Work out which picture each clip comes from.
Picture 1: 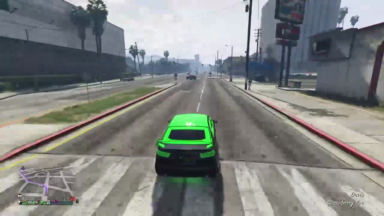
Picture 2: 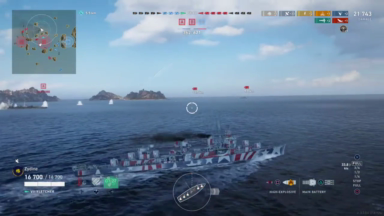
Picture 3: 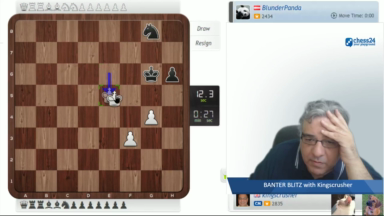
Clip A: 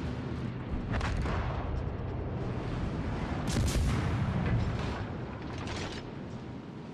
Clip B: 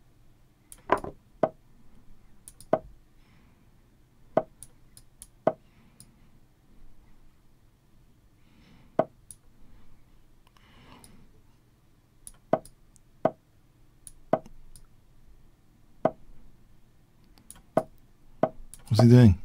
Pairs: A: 2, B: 3